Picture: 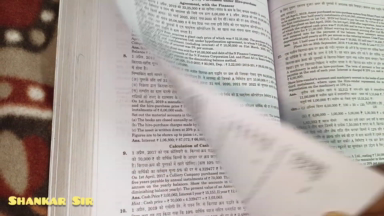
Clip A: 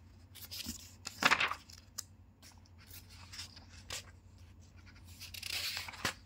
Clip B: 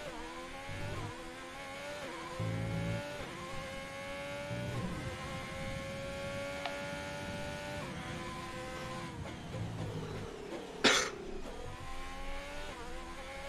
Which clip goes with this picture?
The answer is A